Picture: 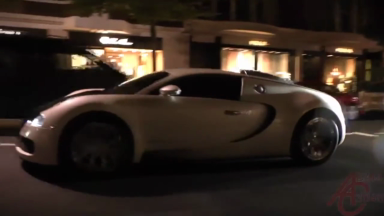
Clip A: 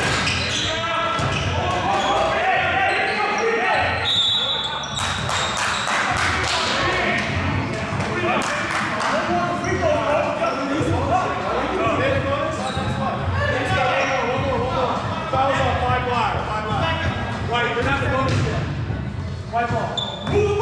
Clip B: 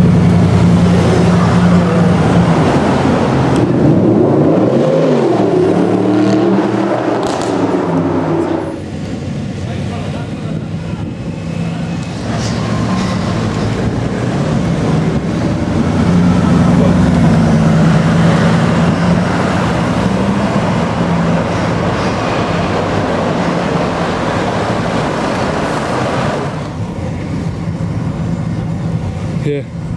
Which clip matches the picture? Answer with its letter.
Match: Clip B